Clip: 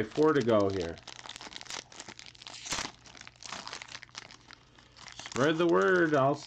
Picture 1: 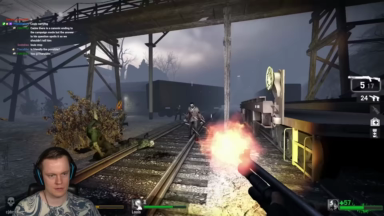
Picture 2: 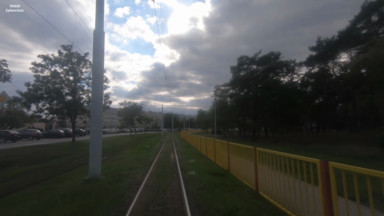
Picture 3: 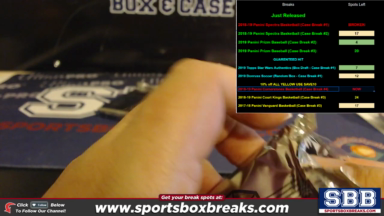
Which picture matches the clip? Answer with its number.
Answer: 3